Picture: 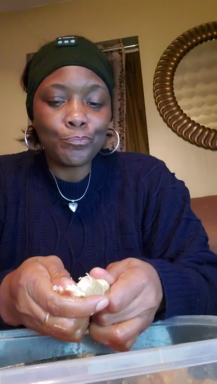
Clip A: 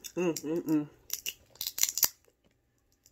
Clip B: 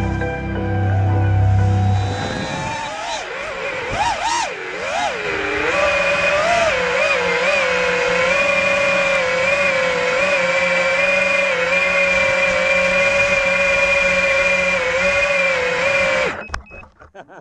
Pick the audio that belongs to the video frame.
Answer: A